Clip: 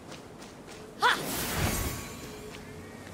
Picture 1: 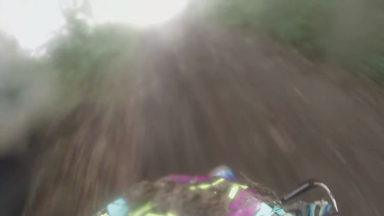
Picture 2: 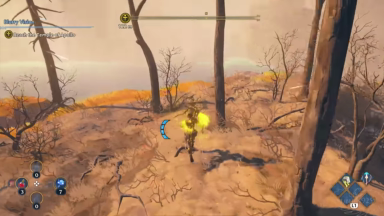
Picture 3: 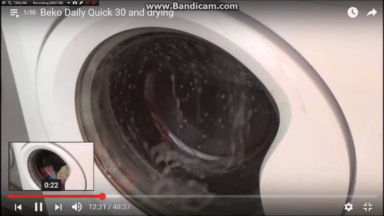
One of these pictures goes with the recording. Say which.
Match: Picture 2